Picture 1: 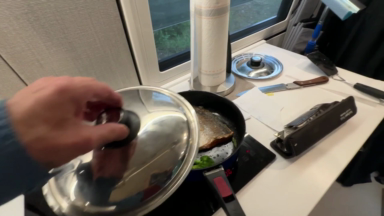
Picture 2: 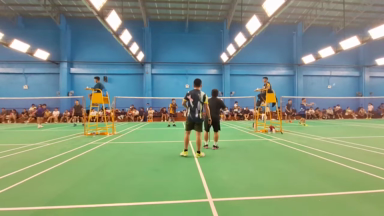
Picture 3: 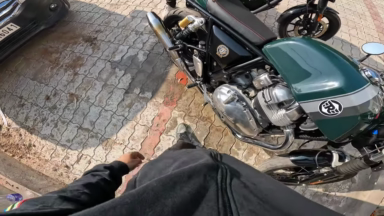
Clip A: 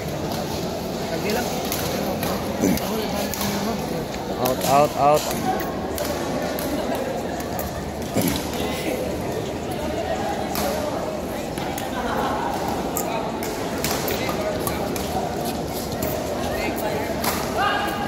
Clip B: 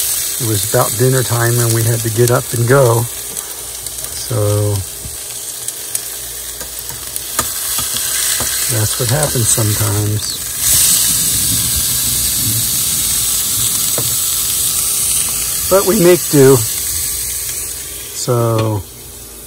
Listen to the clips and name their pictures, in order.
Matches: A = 2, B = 1